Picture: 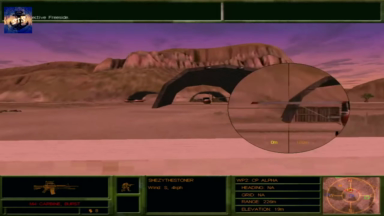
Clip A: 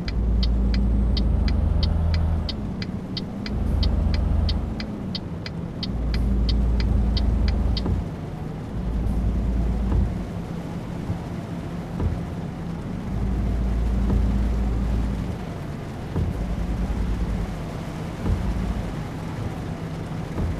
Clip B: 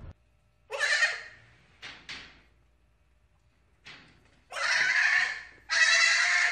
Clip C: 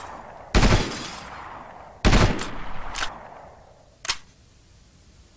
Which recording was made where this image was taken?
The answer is C